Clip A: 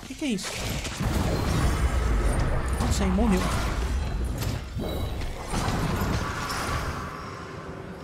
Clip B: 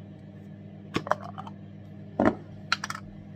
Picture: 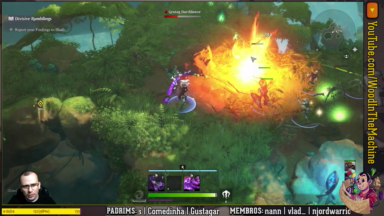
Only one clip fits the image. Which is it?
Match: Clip A